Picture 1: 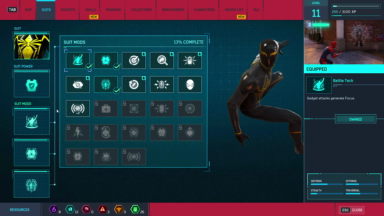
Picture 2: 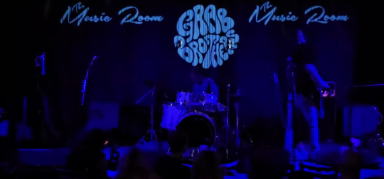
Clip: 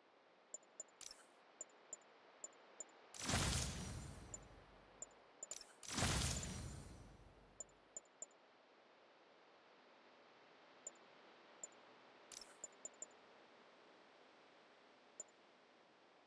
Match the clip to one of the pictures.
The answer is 1